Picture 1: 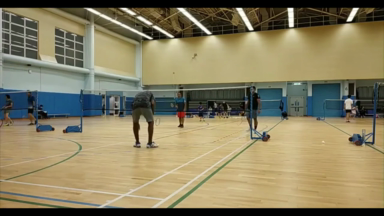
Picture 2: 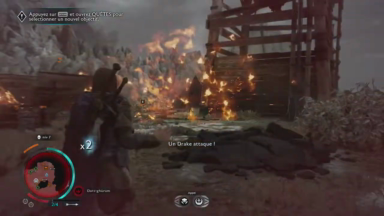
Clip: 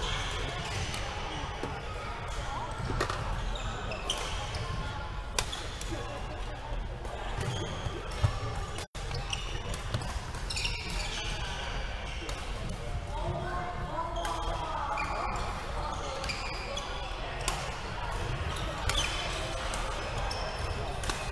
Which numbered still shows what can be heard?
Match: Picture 1